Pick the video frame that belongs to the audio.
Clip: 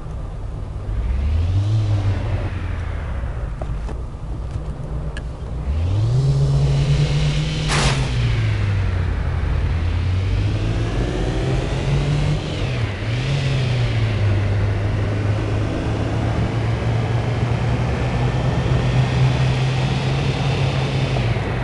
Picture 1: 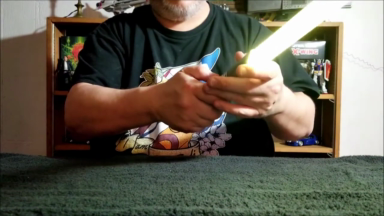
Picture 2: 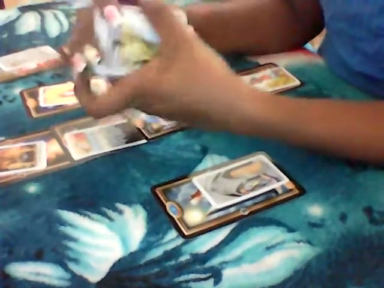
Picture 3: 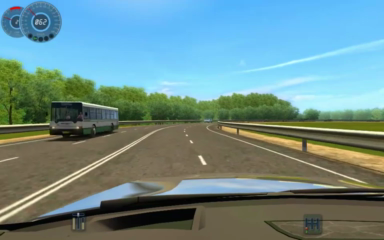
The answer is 3